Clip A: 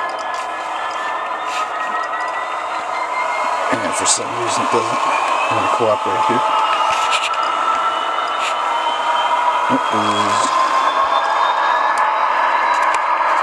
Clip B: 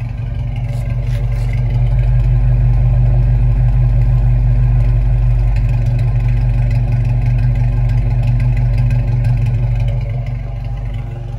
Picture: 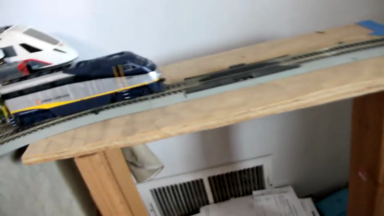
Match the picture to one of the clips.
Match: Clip A